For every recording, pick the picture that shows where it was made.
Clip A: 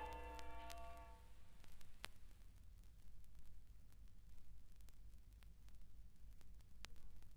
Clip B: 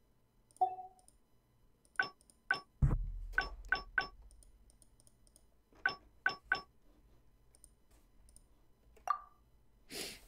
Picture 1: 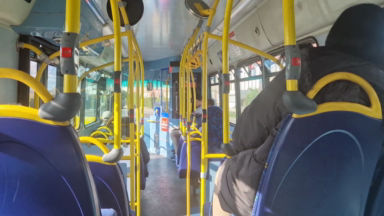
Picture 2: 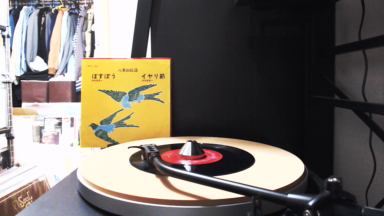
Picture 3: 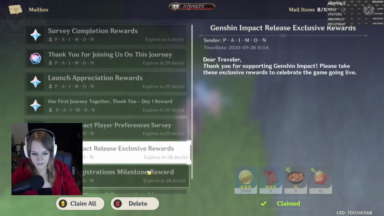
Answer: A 2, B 3